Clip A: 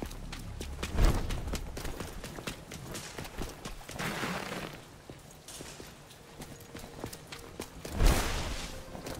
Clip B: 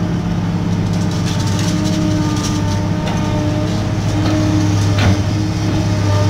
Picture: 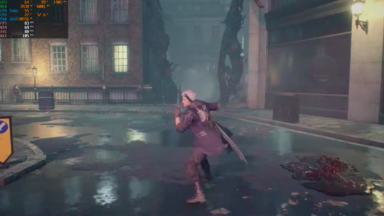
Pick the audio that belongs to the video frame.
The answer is A